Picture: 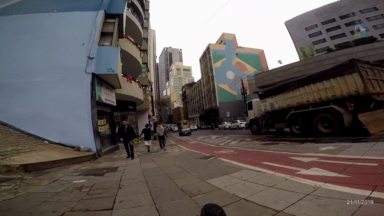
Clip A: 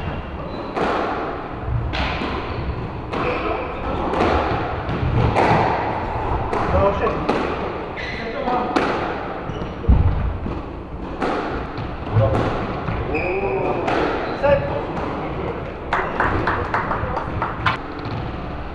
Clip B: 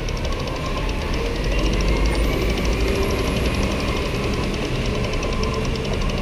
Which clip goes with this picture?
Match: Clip B